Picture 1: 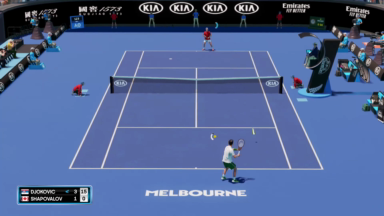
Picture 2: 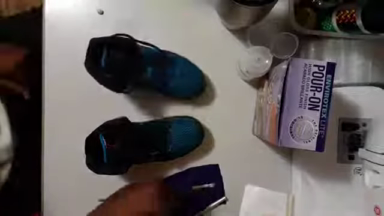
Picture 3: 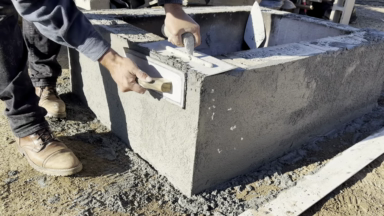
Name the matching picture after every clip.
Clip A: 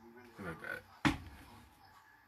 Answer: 2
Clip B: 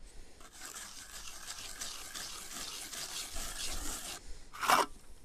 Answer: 3